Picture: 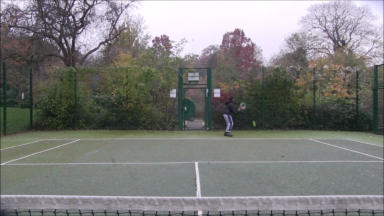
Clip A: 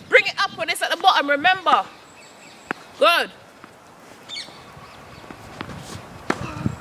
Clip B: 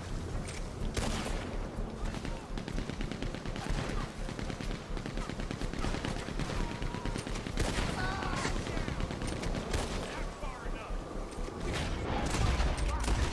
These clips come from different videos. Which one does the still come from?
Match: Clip A